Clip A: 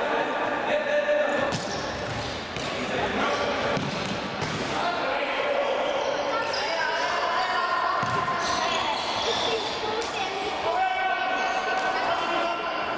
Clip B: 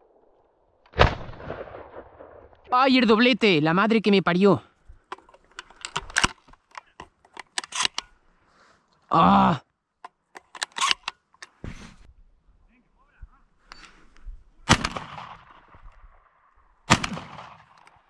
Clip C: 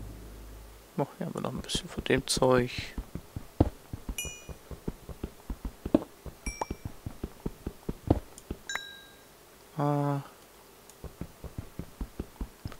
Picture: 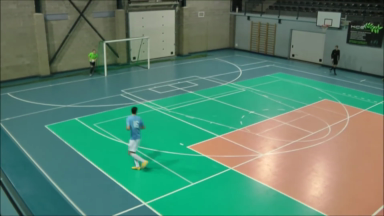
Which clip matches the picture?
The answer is A